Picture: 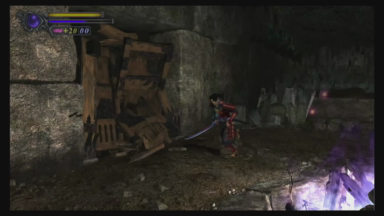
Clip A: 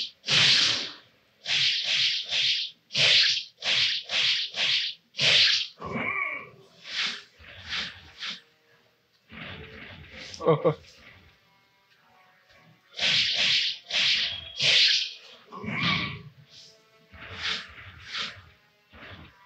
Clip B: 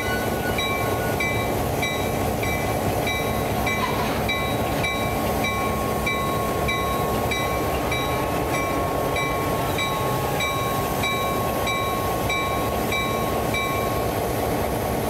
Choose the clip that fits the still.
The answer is A